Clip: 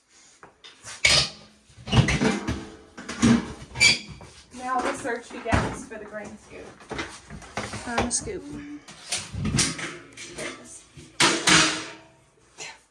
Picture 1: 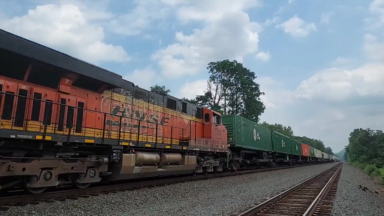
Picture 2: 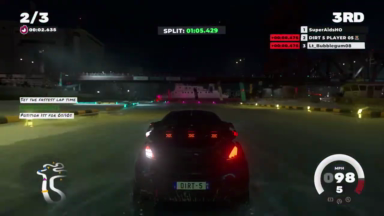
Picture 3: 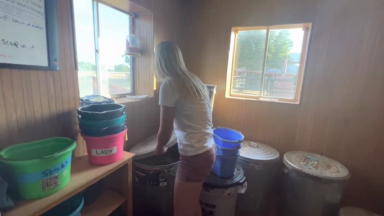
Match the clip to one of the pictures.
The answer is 3